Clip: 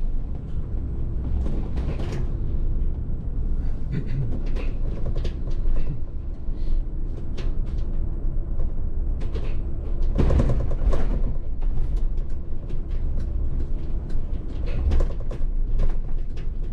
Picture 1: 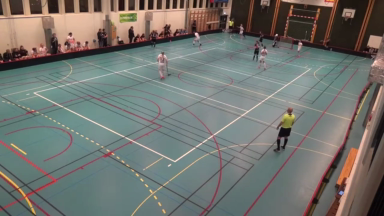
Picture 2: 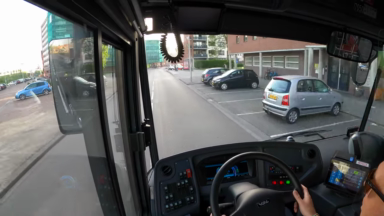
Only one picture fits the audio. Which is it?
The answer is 2